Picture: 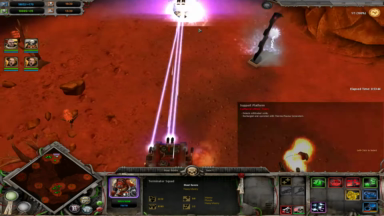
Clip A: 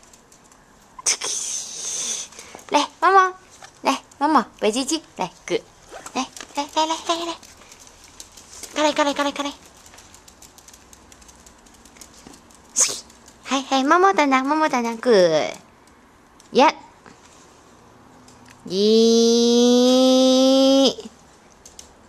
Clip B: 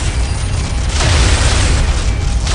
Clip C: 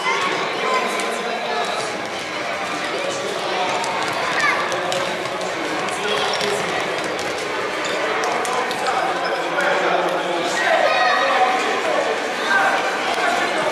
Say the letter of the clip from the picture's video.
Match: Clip B